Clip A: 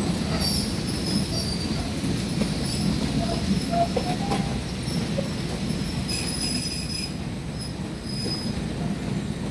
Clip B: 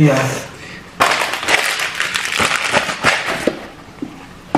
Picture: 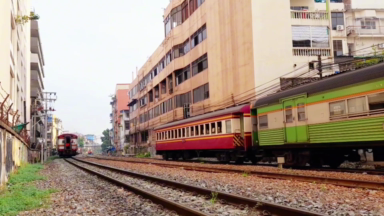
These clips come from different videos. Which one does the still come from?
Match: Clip A